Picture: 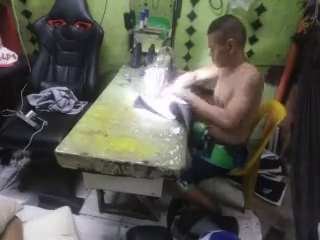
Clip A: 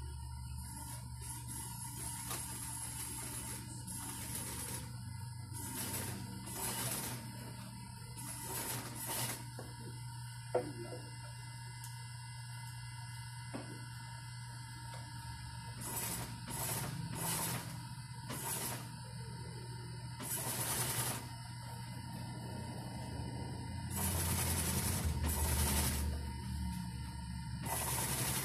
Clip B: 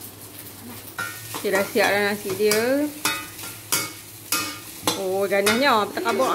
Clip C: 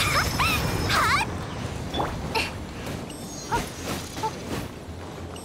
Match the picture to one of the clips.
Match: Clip A